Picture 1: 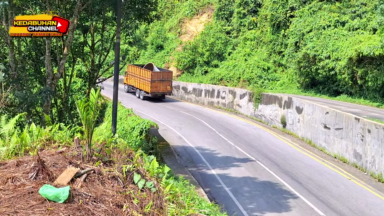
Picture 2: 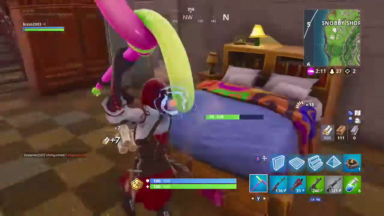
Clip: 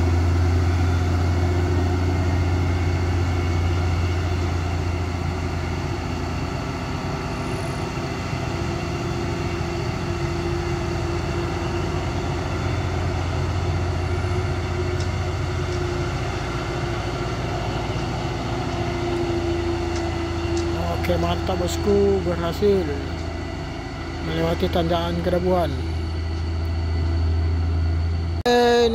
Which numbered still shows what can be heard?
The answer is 1